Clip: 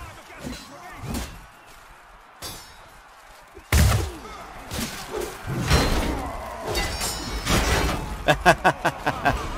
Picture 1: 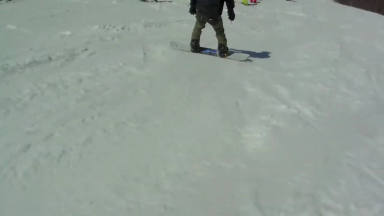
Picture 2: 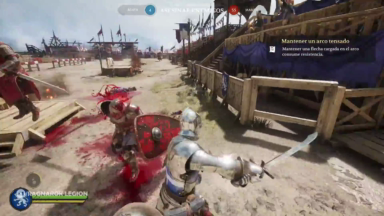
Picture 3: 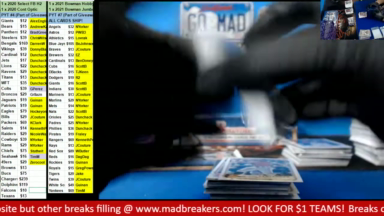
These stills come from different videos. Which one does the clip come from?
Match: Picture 2